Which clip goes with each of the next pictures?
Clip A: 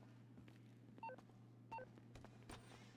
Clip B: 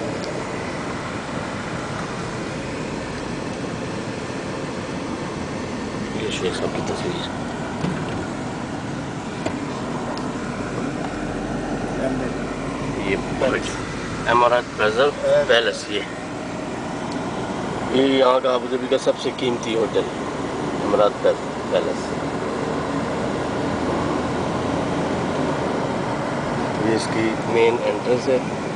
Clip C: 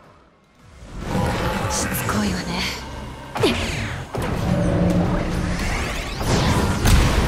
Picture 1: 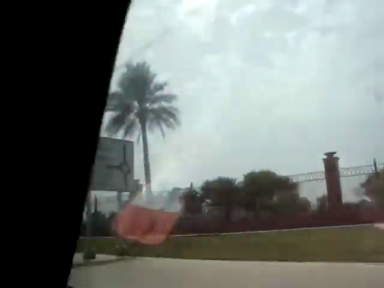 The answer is B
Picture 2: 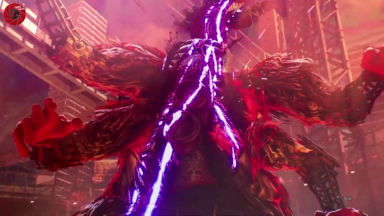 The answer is C